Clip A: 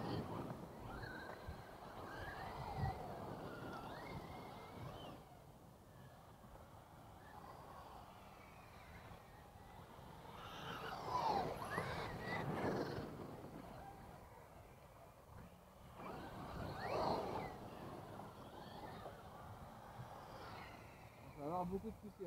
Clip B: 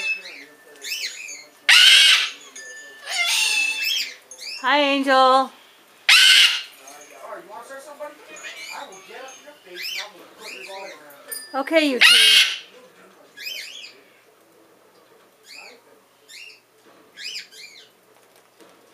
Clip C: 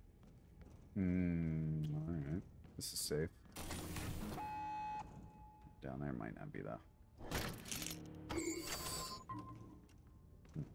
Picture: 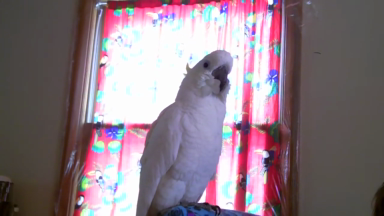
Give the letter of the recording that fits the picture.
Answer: B